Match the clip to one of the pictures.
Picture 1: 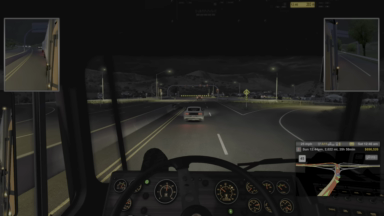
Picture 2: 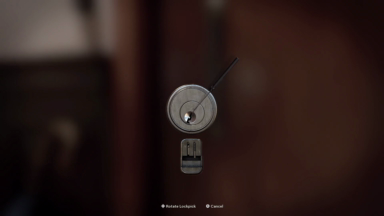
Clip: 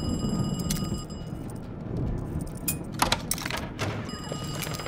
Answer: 2